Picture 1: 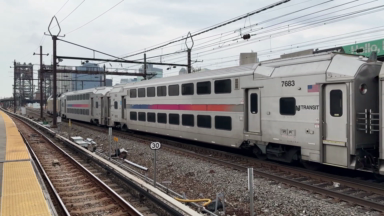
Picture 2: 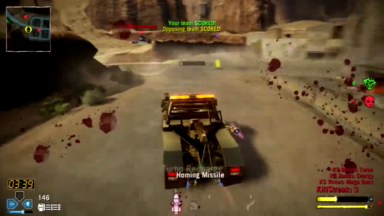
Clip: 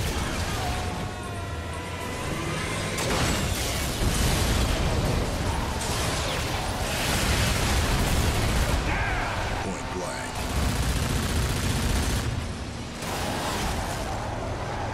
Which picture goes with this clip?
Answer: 2